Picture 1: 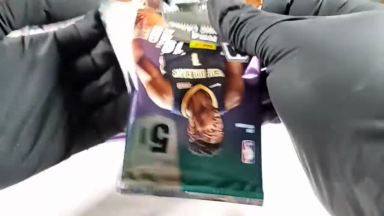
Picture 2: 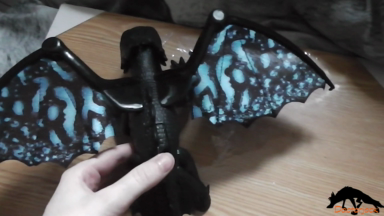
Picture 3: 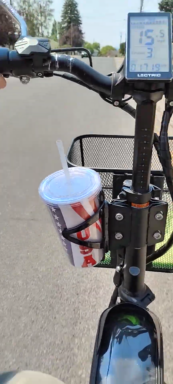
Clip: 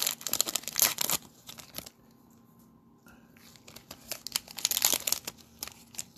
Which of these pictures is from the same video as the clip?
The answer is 1